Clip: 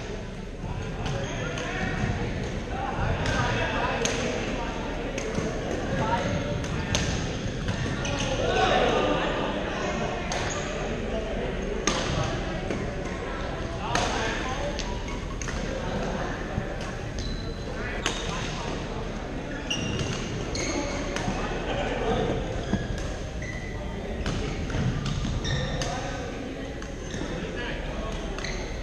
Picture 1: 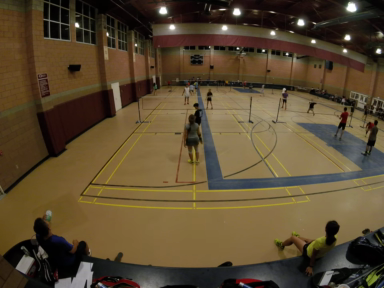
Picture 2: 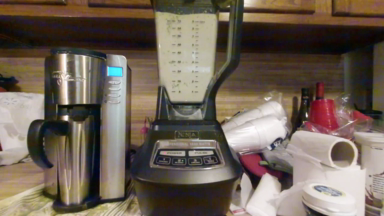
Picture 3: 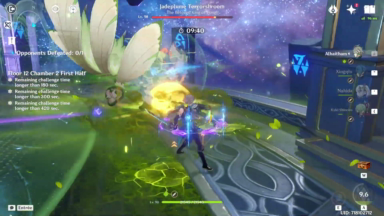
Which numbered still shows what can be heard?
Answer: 1